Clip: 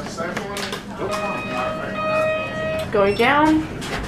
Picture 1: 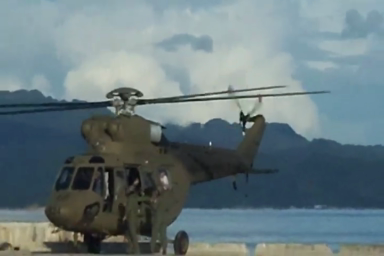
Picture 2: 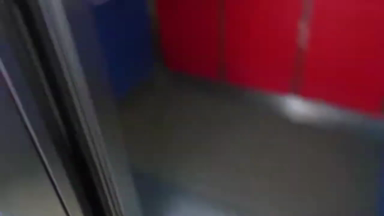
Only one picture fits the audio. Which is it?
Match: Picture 2